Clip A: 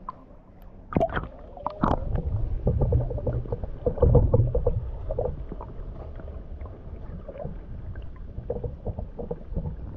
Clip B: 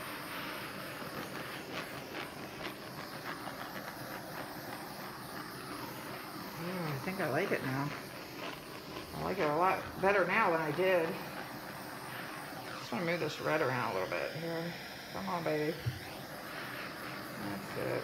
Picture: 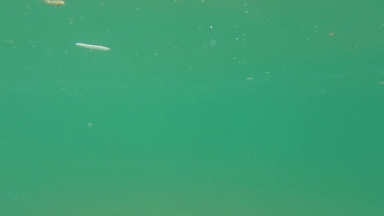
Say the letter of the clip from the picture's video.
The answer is A